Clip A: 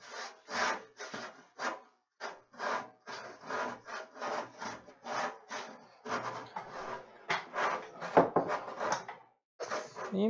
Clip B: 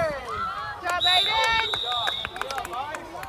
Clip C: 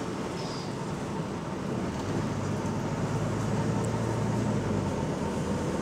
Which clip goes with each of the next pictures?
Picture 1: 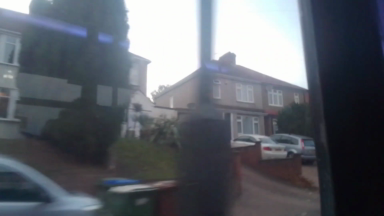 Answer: C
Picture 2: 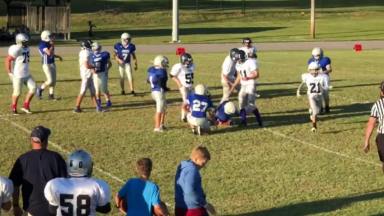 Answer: B